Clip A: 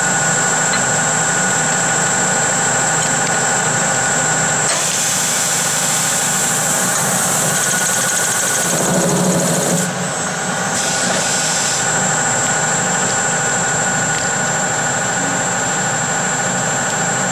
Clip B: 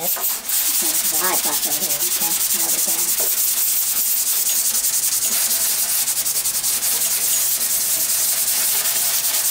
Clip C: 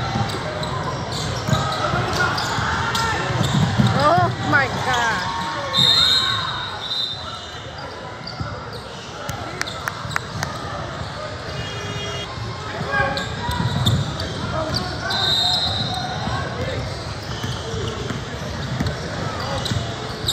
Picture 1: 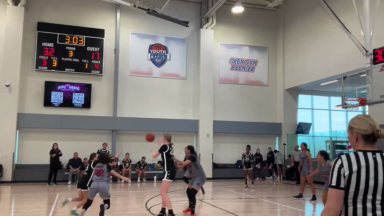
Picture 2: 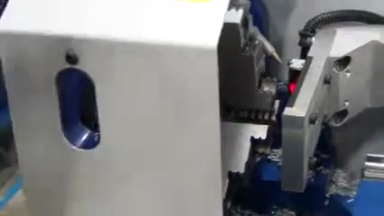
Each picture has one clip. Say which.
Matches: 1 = C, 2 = A